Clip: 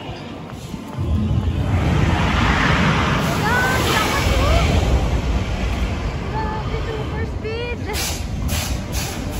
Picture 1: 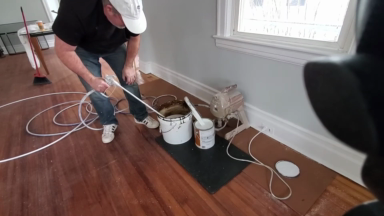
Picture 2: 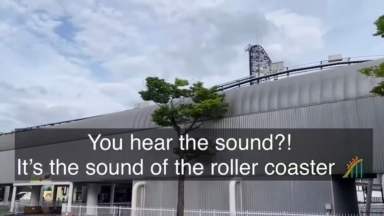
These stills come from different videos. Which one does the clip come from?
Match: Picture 2